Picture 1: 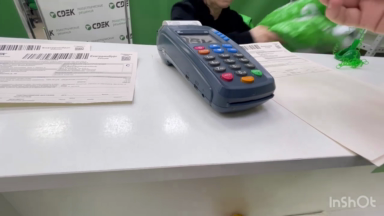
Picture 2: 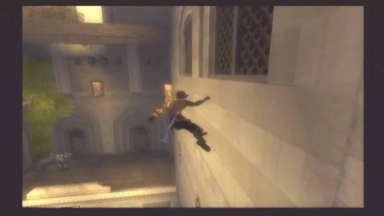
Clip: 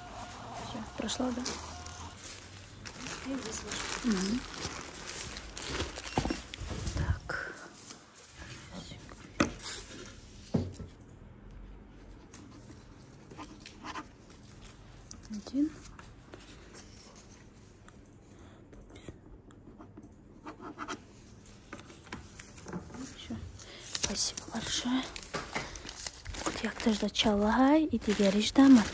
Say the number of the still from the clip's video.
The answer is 1